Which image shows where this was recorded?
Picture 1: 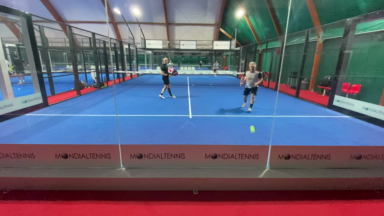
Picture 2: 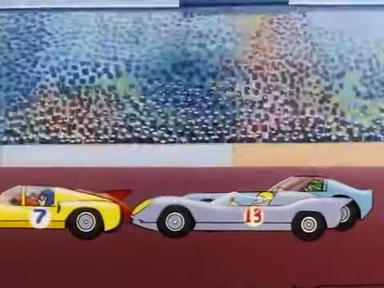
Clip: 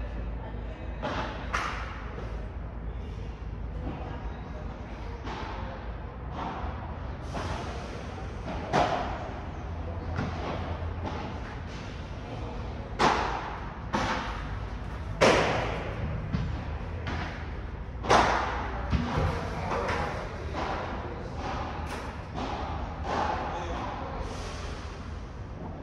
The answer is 1